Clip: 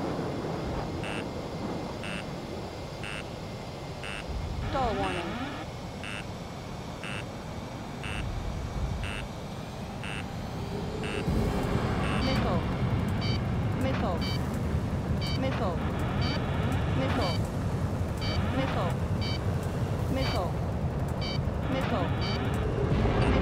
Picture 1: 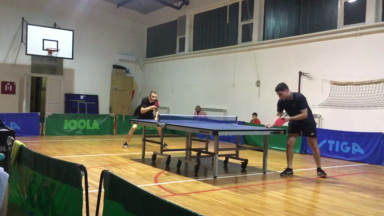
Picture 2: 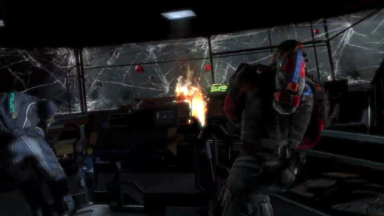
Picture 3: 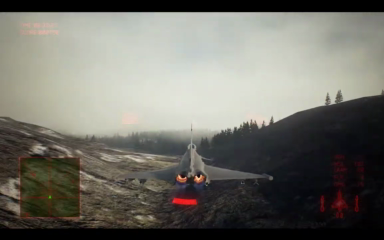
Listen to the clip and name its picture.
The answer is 3